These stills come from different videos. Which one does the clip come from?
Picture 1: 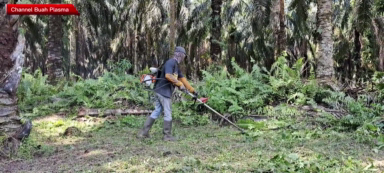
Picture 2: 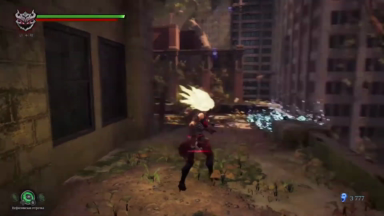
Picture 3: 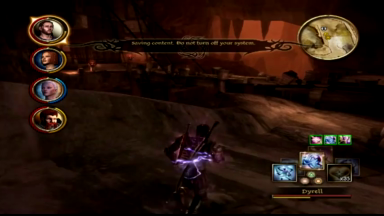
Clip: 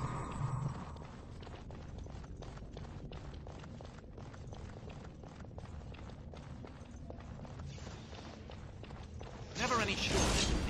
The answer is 3